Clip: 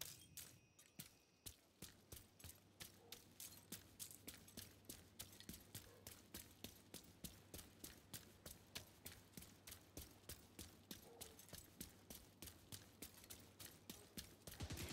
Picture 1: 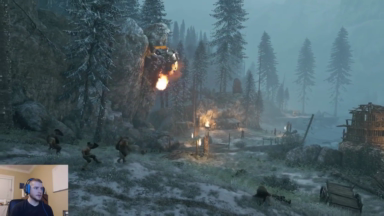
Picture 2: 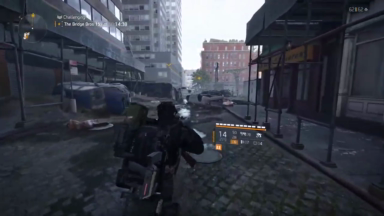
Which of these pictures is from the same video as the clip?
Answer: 2